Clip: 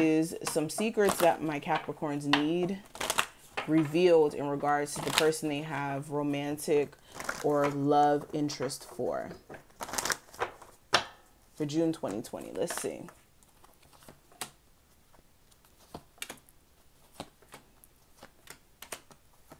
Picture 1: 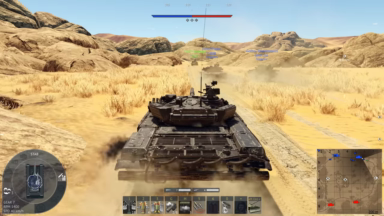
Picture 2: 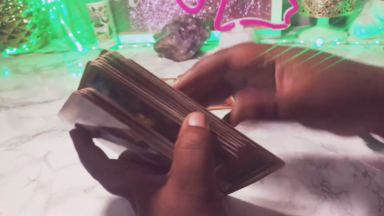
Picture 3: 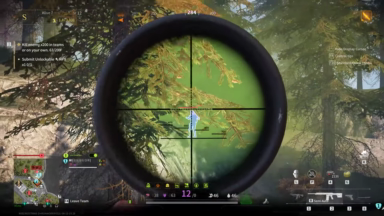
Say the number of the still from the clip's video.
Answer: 2